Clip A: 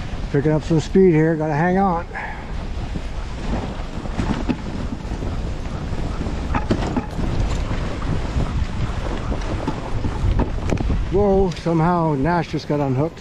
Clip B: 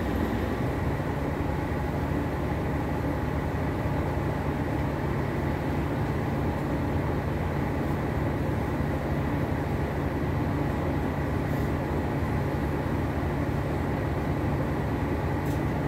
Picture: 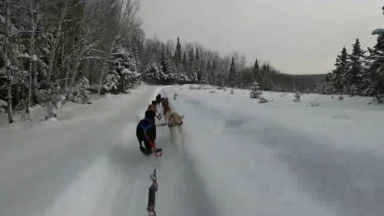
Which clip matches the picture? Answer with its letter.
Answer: A